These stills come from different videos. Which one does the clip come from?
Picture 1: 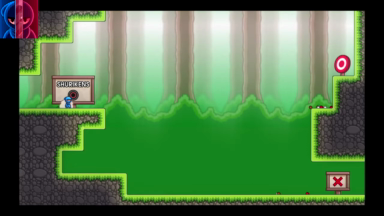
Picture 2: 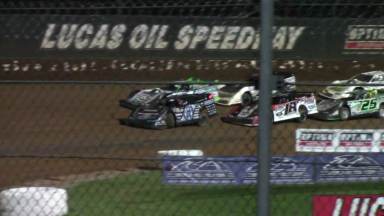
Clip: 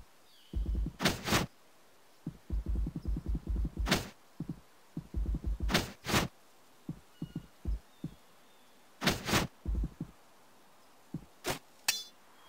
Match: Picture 1